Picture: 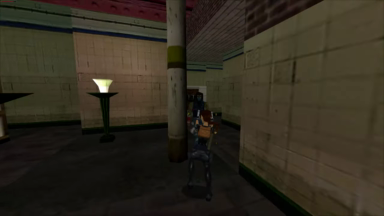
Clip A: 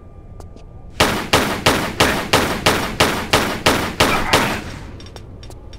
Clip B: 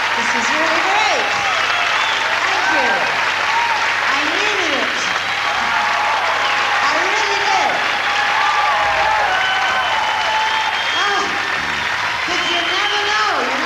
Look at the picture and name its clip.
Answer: A